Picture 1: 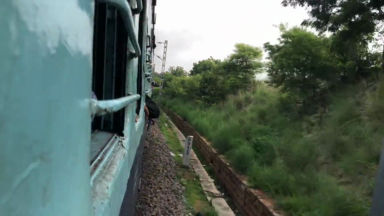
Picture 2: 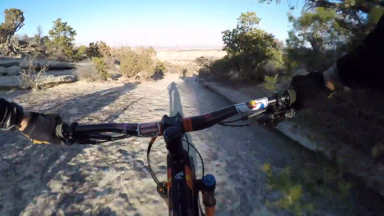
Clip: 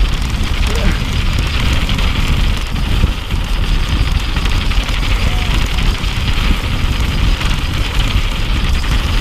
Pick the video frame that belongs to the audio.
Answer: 2